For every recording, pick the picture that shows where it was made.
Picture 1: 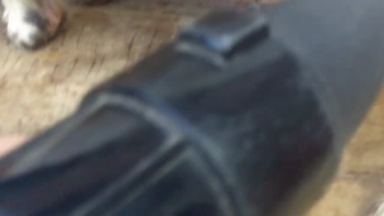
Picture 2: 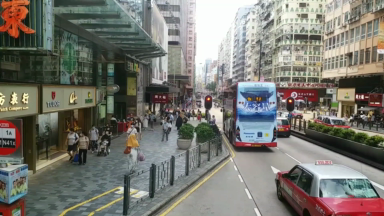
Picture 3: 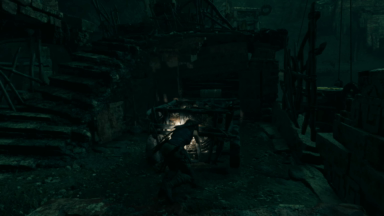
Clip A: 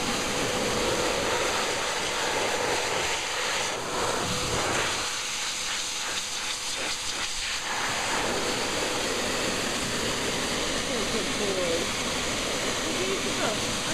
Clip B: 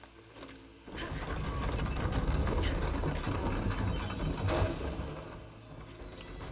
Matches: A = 1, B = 3